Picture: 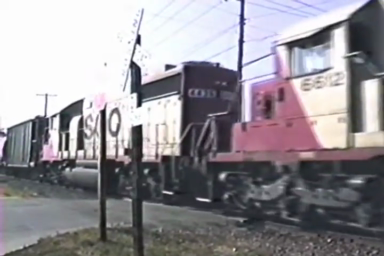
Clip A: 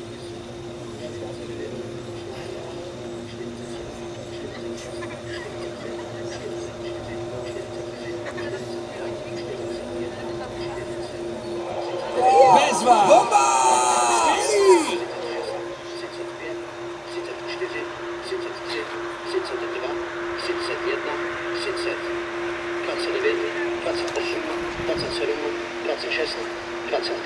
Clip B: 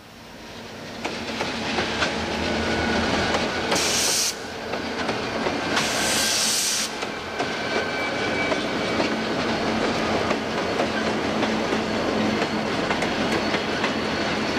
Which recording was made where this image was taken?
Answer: B